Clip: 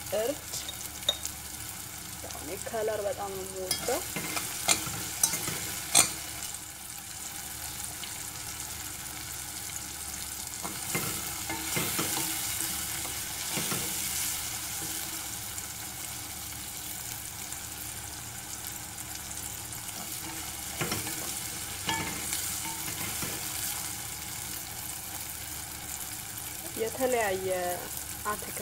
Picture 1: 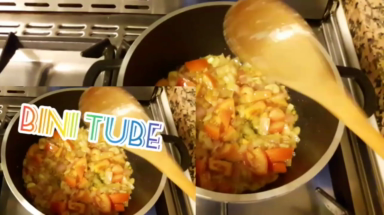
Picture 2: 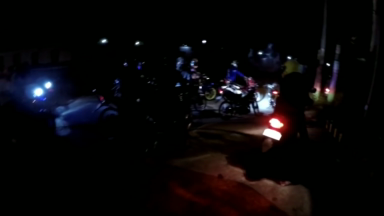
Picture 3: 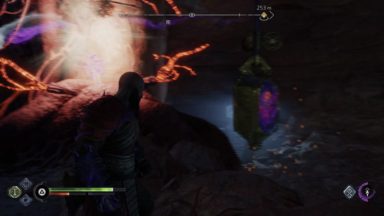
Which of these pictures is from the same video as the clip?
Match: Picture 1